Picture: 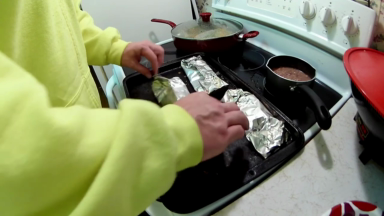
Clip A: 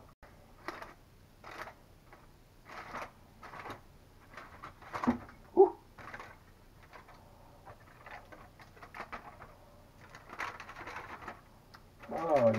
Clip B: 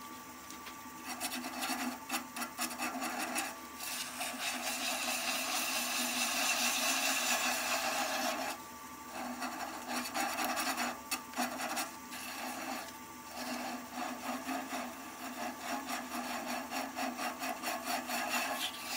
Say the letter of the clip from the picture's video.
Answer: A